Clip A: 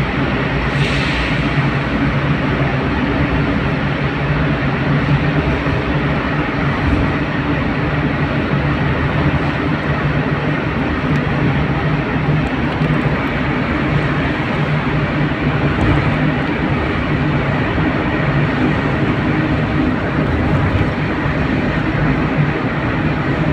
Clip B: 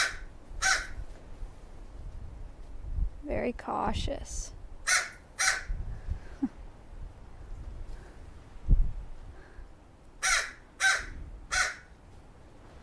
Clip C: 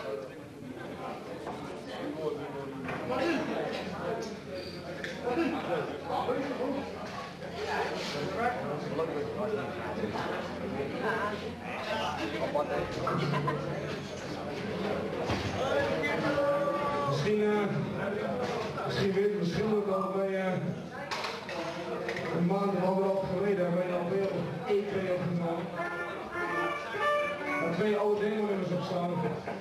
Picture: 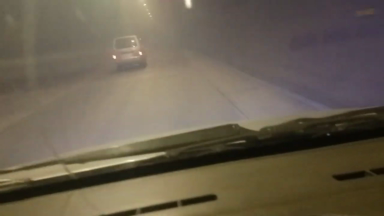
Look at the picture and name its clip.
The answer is A